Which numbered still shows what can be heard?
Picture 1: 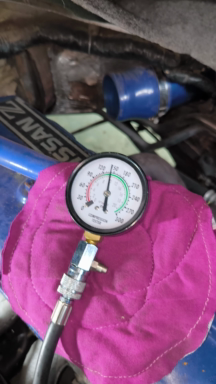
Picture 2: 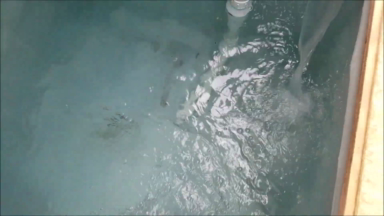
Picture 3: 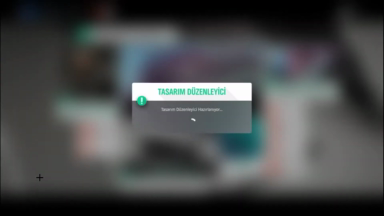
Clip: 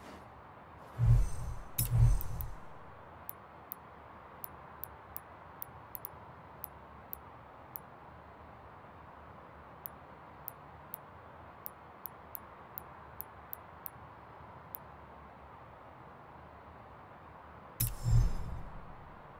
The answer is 3